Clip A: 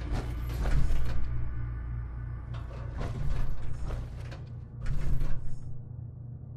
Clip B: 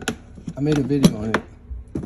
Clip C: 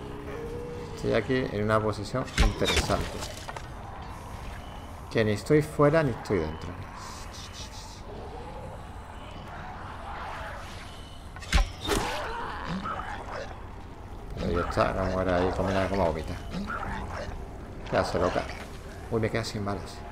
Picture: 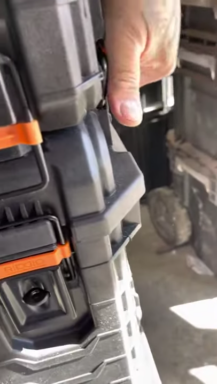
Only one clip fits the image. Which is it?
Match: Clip B